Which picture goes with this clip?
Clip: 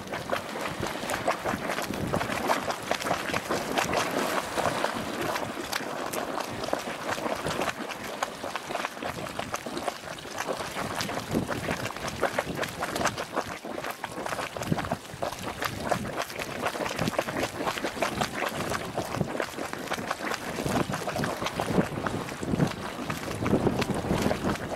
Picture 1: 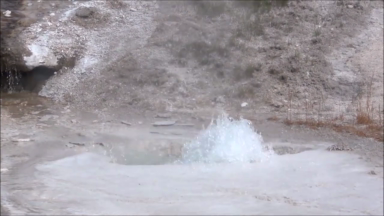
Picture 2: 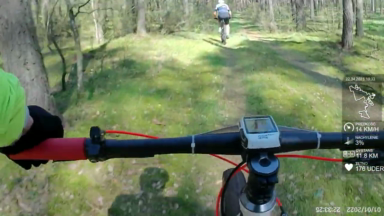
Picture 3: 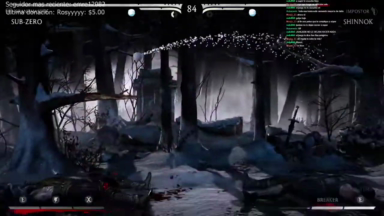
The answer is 1